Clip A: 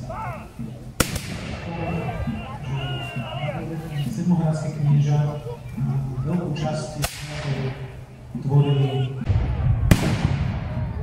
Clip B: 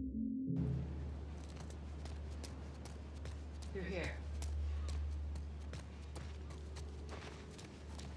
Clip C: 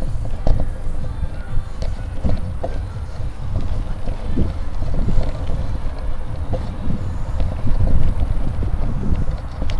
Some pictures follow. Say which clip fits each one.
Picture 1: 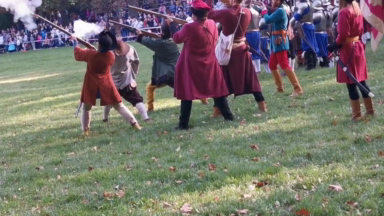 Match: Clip A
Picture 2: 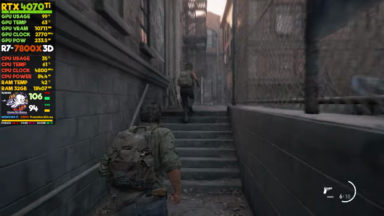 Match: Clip B